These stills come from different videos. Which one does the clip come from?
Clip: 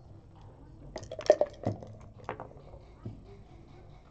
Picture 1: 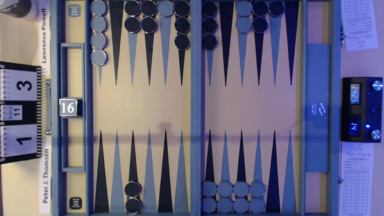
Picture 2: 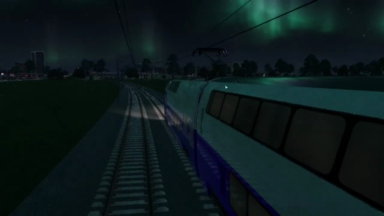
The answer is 1